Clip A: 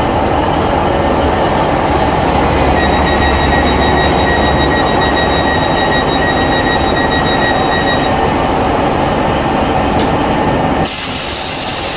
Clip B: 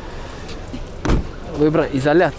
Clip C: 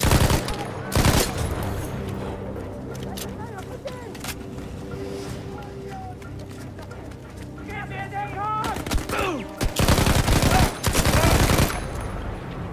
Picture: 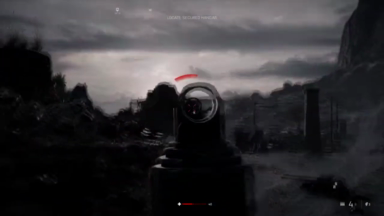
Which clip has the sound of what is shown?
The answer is C